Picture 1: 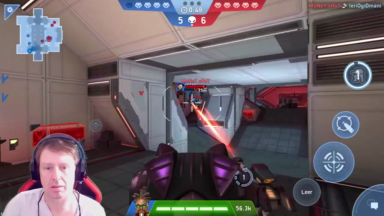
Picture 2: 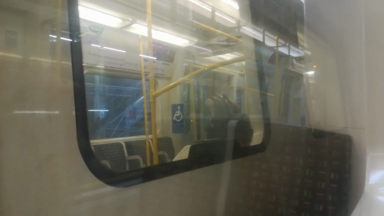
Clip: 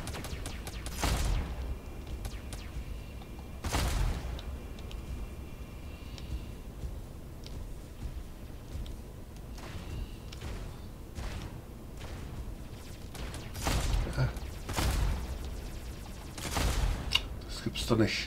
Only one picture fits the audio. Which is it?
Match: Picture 1